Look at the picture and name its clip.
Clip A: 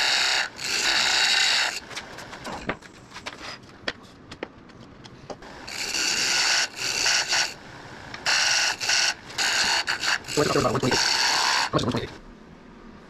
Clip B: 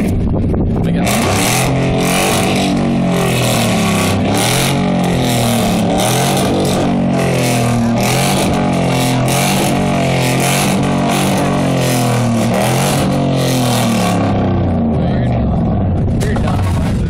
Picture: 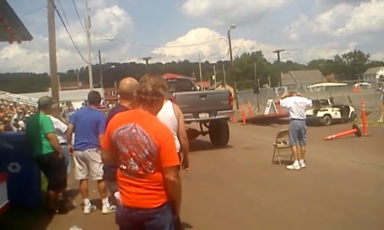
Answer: B